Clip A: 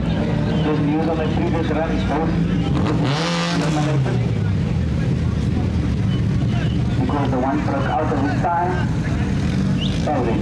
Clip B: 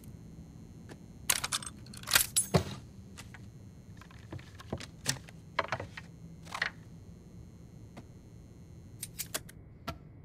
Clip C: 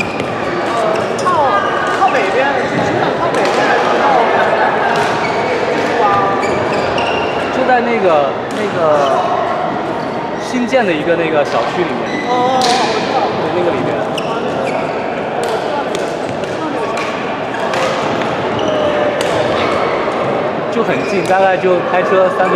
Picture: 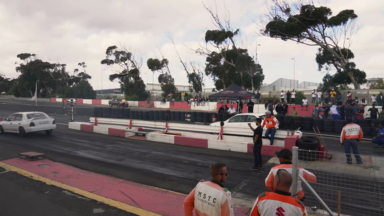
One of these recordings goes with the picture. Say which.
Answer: A